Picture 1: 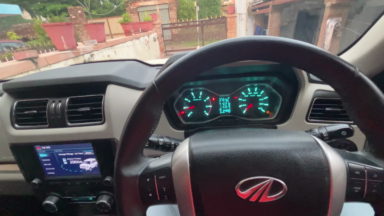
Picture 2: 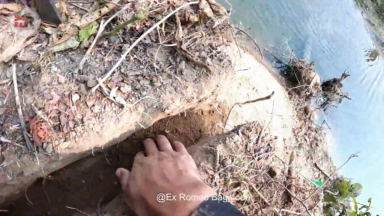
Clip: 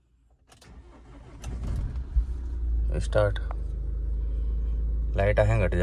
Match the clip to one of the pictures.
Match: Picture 1